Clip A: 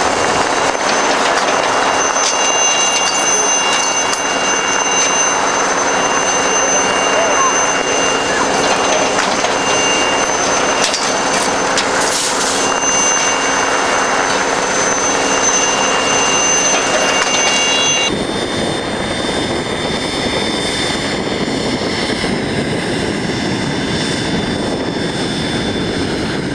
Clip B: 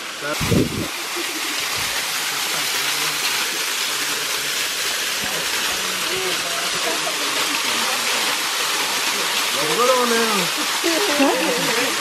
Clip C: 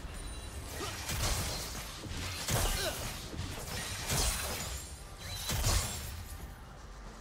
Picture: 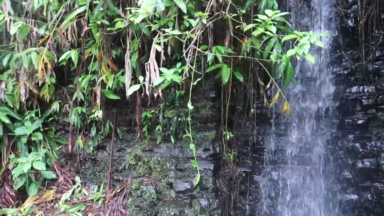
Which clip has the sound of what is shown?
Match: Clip B